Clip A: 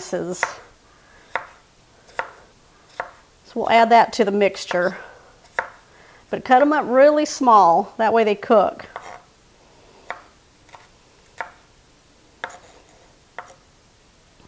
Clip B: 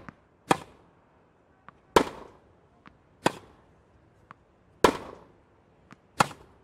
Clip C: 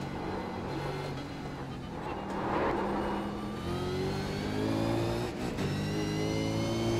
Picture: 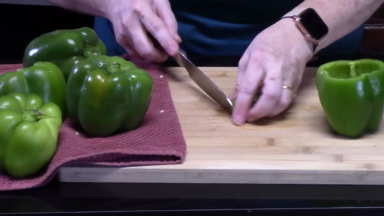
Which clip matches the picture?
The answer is A